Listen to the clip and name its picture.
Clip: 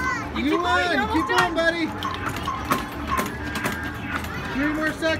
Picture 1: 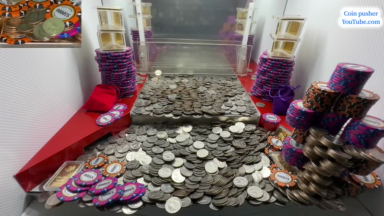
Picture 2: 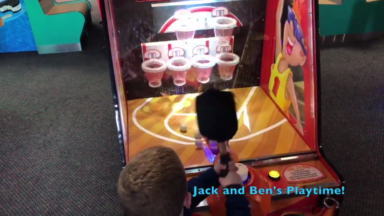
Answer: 2